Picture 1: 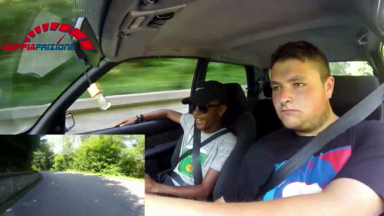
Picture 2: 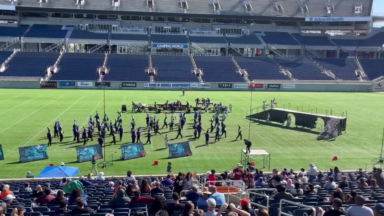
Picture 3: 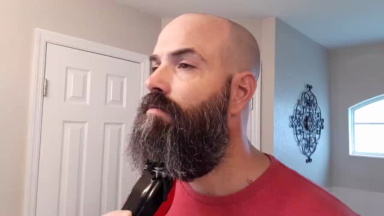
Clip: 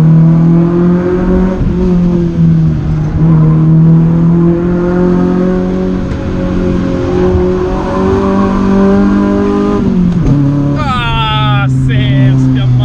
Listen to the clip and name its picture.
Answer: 1